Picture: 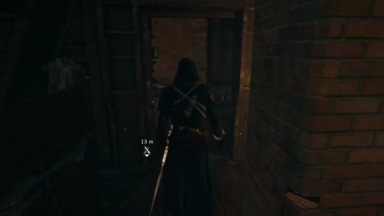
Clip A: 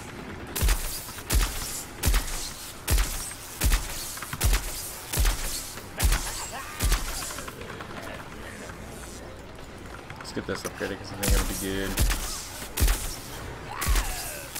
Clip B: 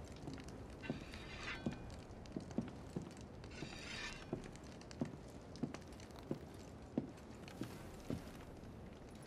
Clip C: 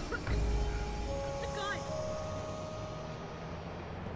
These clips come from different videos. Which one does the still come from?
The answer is B